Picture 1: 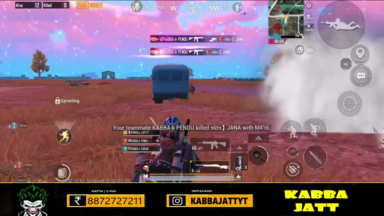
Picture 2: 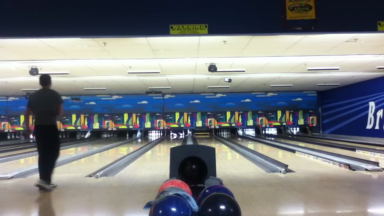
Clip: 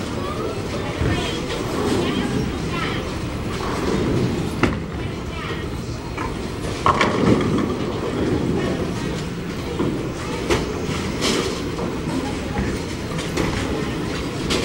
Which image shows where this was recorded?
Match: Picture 2